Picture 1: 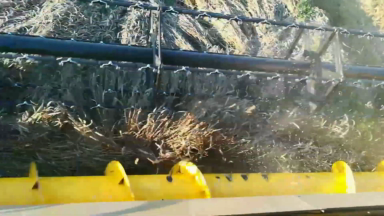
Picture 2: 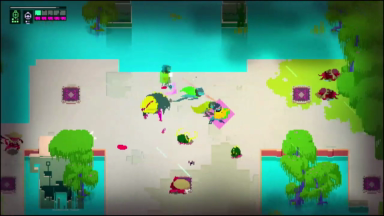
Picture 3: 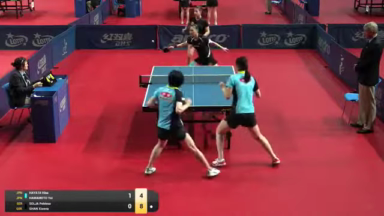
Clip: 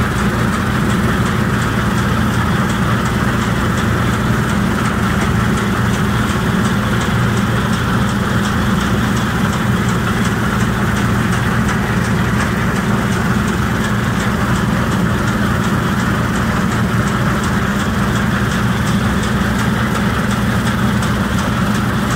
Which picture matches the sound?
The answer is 1